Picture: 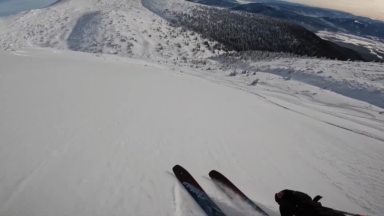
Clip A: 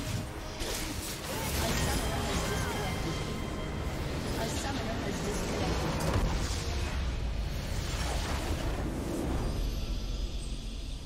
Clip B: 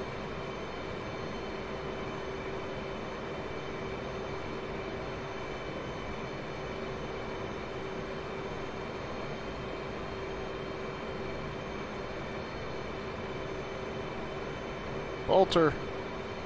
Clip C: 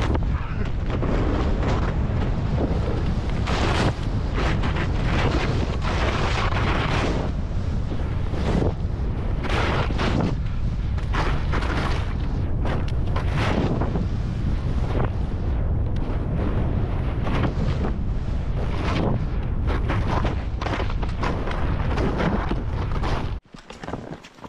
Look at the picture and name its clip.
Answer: C